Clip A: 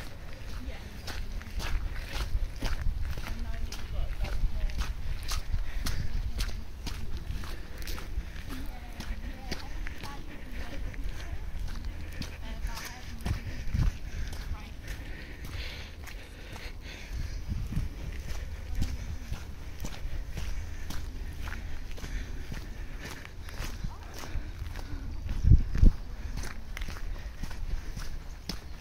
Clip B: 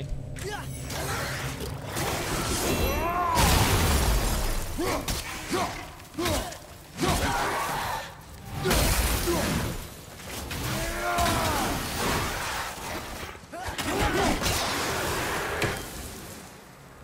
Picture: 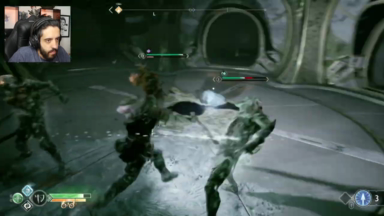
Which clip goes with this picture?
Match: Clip B